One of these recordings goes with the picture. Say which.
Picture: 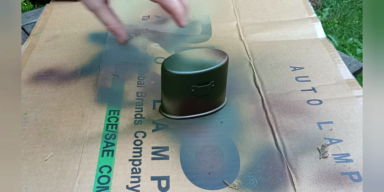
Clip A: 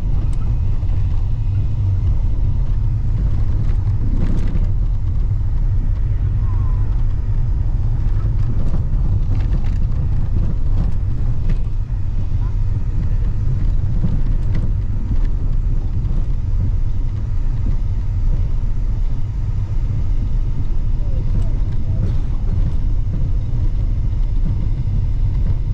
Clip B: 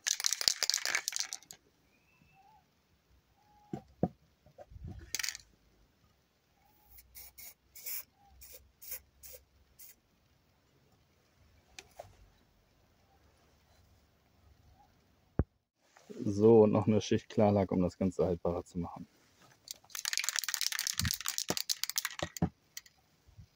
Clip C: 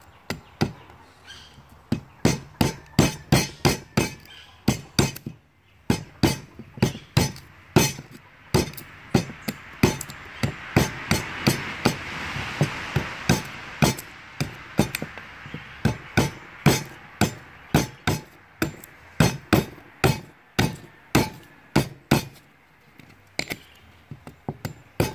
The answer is B